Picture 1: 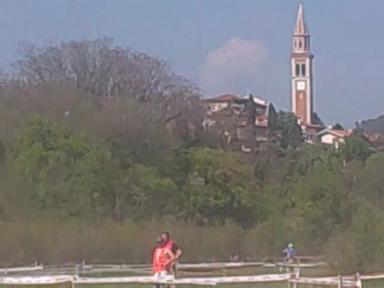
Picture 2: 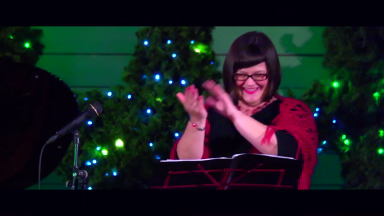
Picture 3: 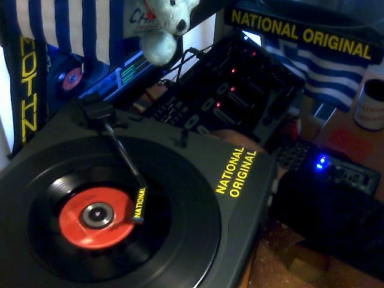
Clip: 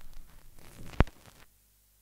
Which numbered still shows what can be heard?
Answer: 3